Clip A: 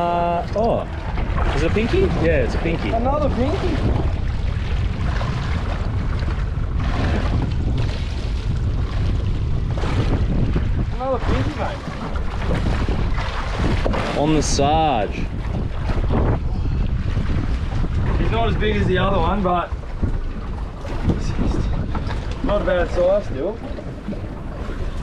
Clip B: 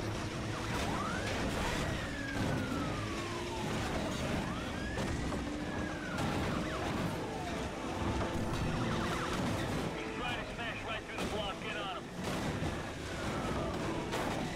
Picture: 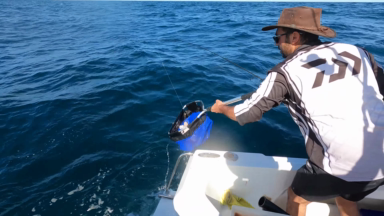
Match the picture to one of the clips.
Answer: A